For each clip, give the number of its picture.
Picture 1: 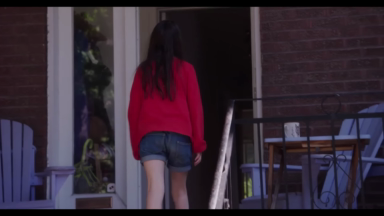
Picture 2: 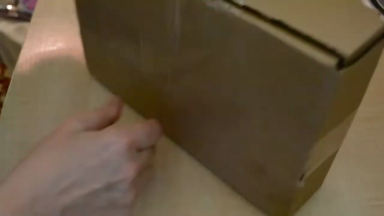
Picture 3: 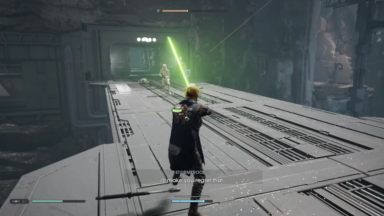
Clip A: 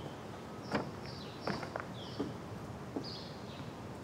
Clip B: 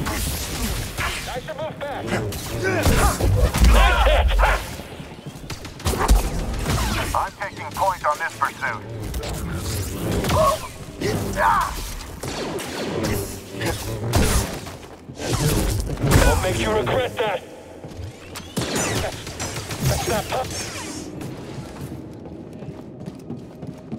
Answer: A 1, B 3